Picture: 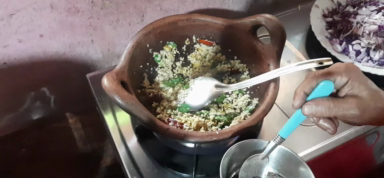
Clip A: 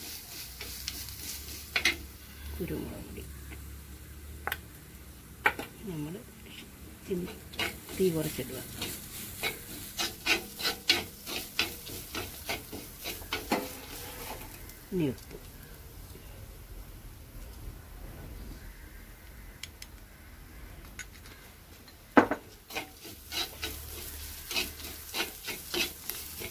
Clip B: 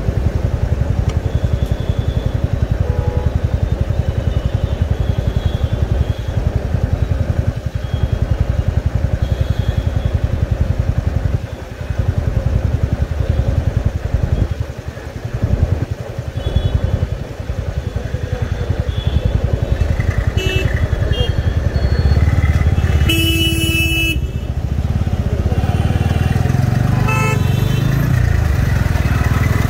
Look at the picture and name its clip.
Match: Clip A